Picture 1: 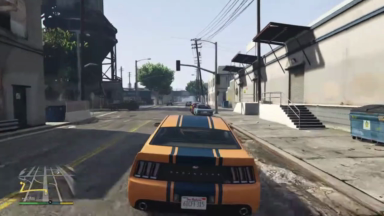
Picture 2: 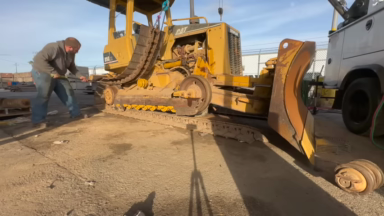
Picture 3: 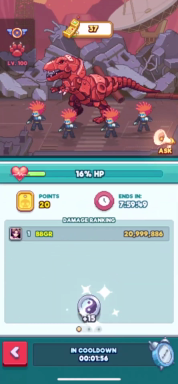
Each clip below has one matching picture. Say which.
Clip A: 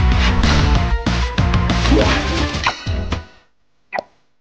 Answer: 3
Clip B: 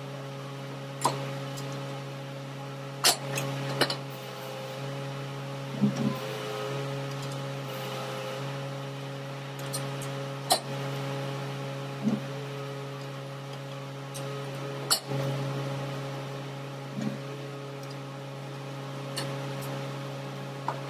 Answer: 2